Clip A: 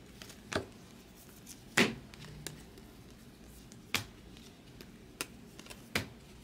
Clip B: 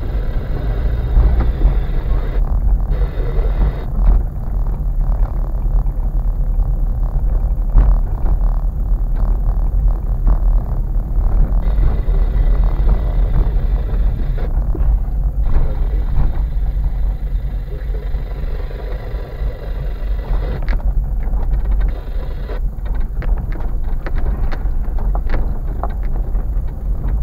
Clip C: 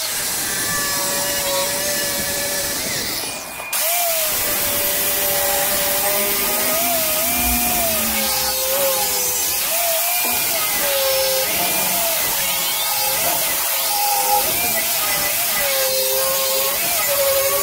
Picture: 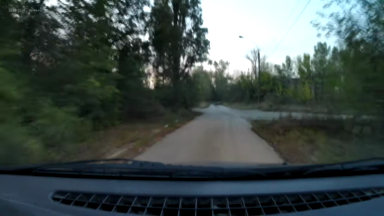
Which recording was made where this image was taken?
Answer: B